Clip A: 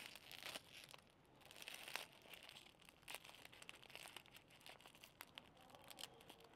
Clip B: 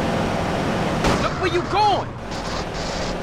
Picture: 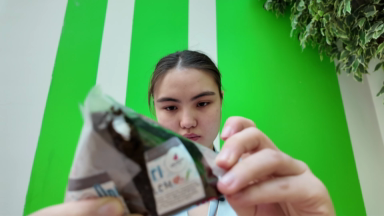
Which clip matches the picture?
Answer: A